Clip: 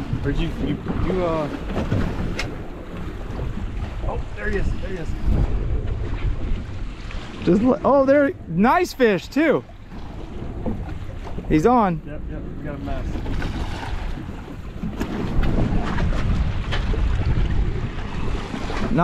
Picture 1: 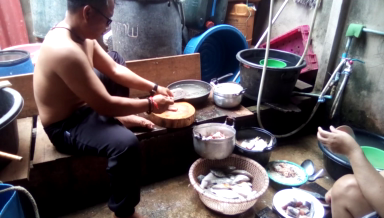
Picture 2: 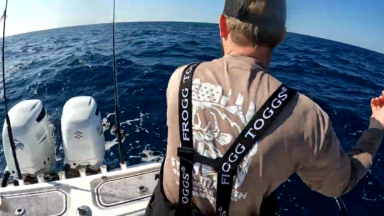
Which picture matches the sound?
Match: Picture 2